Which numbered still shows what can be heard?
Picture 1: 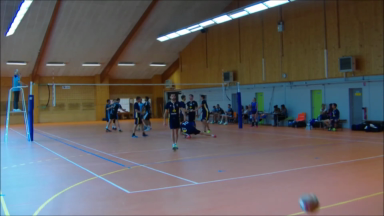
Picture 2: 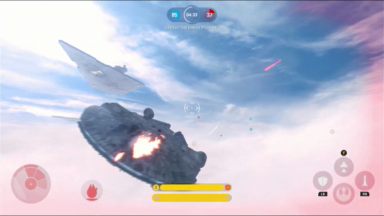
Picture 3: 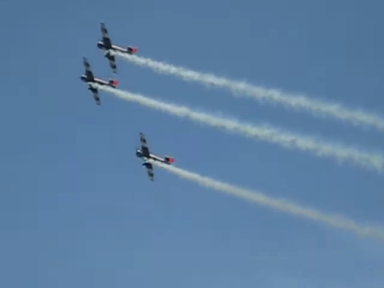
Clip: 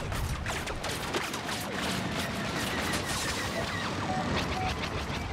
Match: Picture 2